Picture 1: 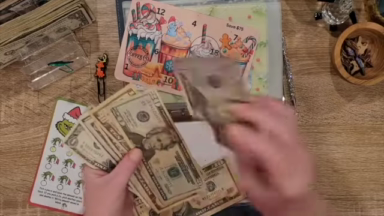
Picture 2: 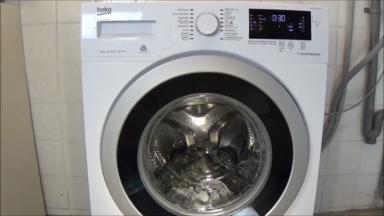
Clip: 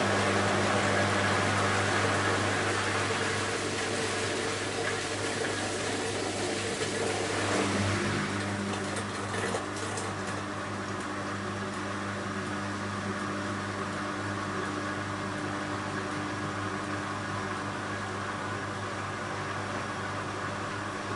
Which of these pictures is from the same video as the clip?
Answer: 2